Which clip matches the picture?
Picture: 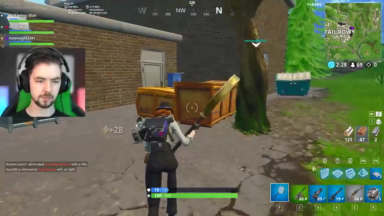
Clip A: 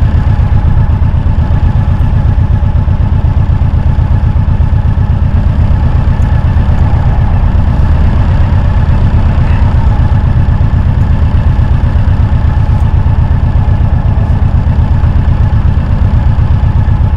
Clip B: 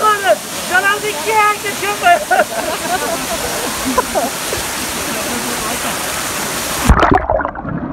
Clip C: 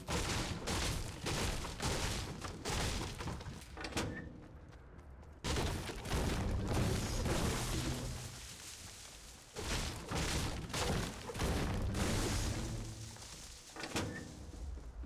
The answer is C